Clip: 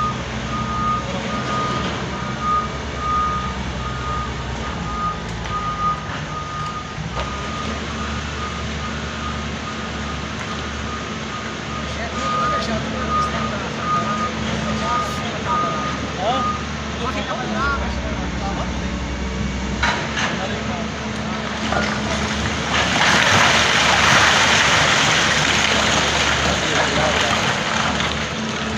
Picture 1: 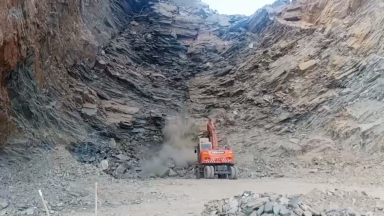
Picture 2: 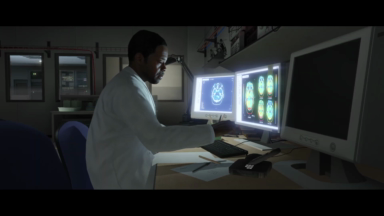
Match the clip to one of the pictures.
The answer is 1